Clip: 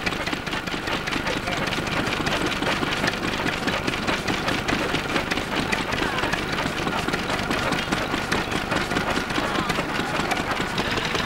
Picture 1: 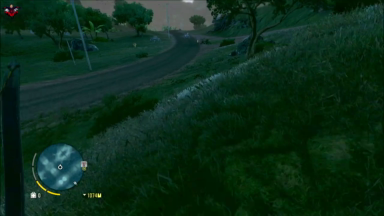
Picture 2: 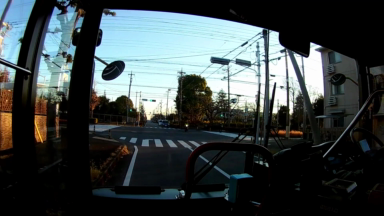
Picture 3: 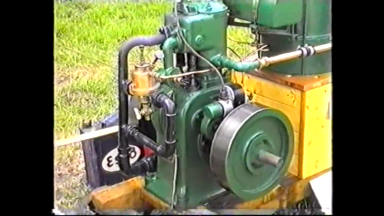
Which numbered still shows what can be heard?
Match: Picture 3